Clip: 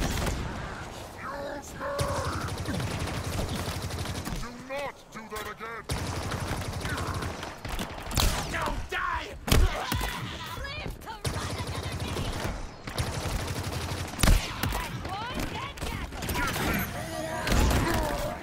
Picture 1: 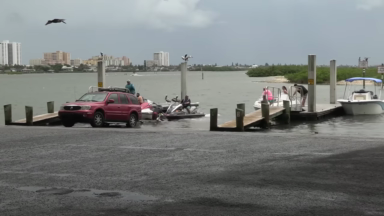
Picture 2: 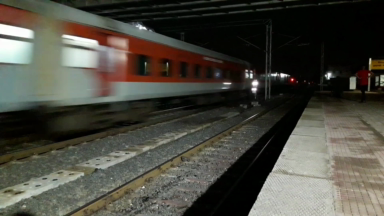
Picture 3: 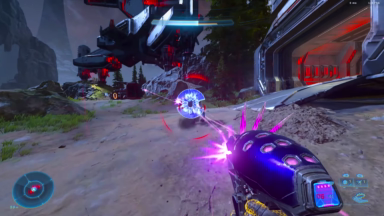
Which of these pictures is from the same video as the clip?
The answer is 3